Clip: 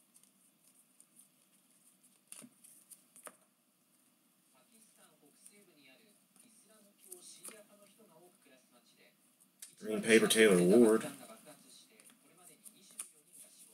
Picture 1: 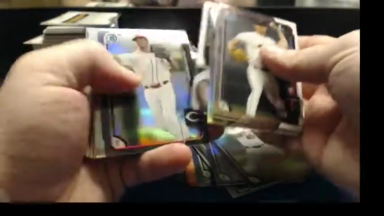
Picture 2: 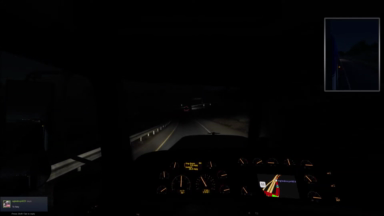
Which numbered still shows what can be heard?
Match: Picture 1